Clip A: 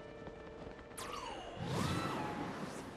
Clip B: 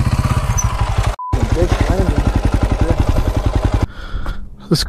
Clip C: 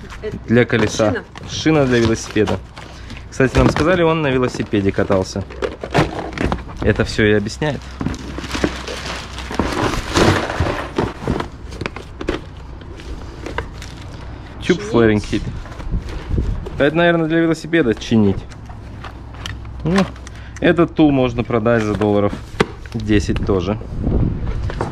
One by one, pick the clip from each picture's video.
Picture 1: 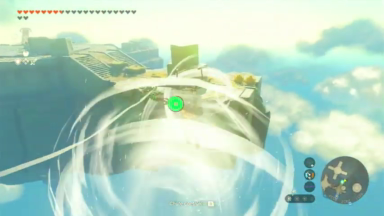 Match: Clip A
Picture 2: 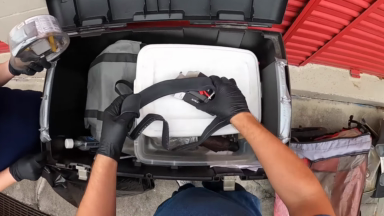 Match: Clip C